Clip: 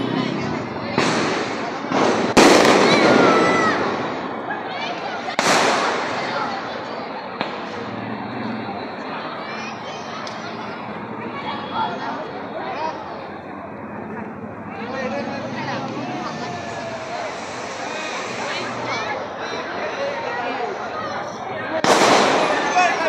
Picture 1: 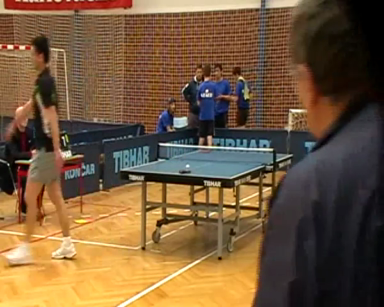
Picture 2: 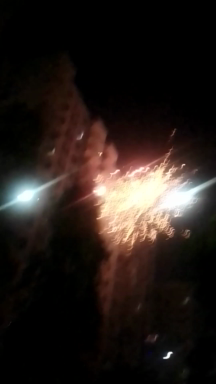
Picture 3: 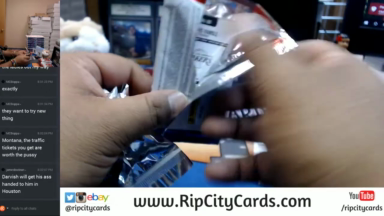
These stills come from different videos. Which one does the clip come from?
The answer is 2